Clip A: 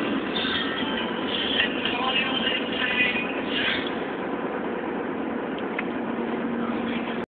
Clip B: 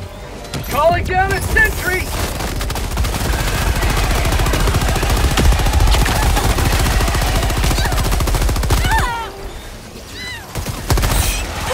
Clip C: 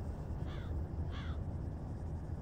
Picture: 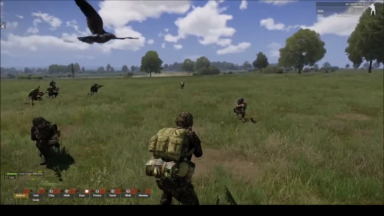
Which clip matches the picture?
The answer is C